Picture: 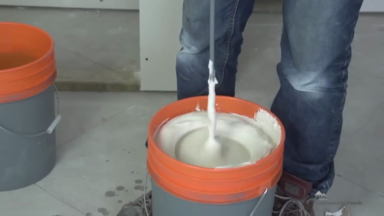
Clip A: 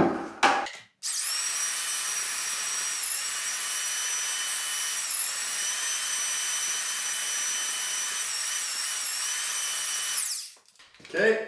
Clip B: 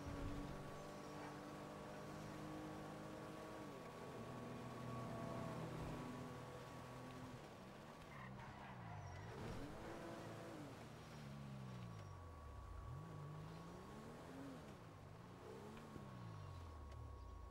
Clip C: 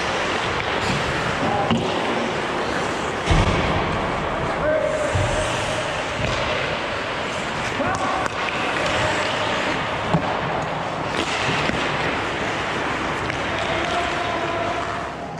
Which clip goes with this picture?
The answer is A